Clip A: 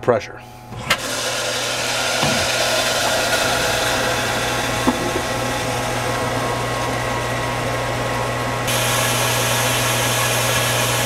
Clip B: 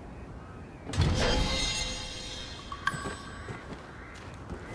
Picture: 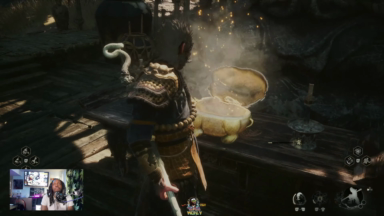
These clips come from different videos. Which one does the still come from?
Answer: B